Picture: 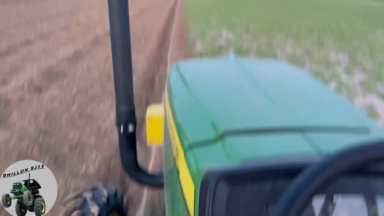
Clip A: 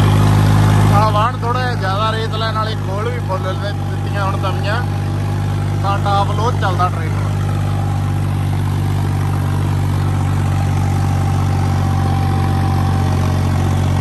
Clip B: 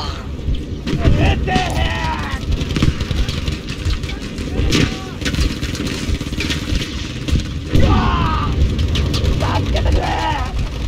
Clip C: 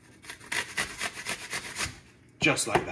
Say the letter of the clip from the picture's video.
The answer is A